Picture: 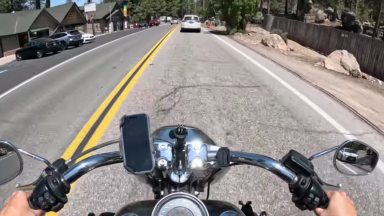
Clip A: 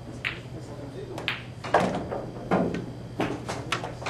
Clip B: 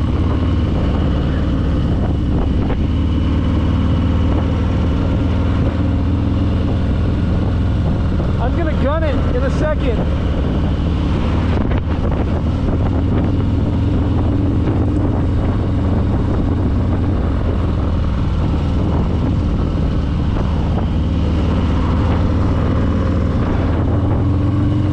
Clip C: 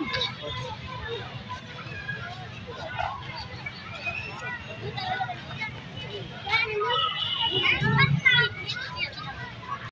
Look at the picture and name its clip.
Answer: B